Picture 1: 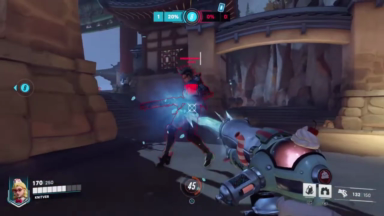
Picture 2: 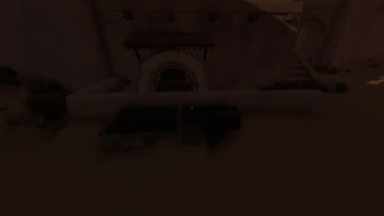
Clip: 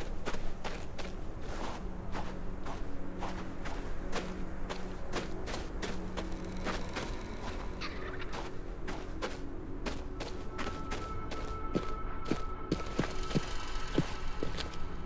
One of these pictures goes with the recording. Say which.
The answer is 2